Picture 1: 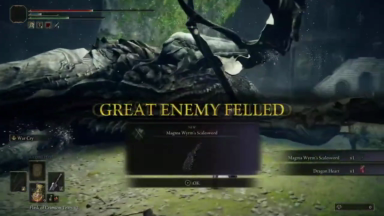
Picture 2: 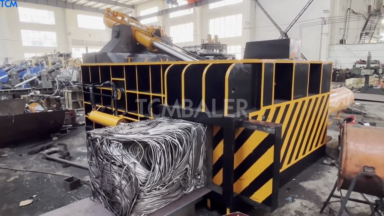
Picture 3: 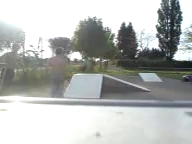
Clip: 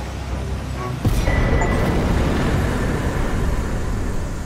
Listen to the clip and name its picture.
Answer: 1